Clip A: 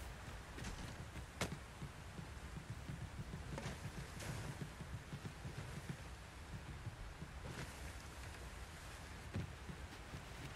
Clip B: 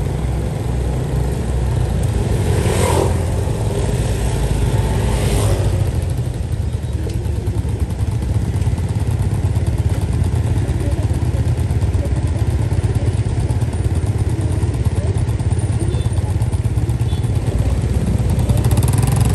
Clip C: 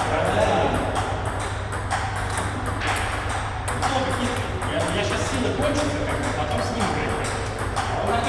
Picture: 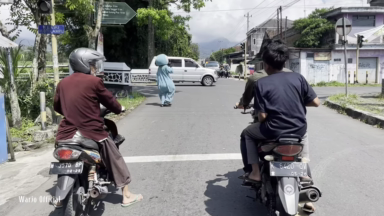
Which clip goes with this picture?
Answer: B